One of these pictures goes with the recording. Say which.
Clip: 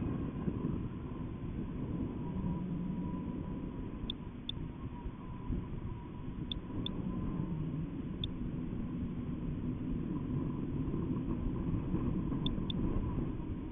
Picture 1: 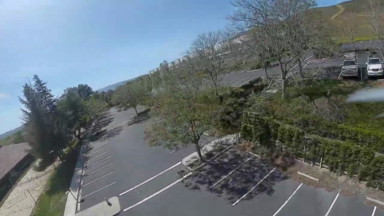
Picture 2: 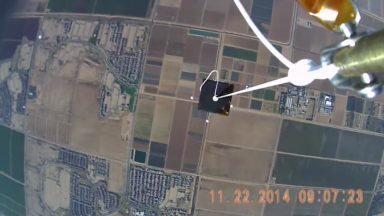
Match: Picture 2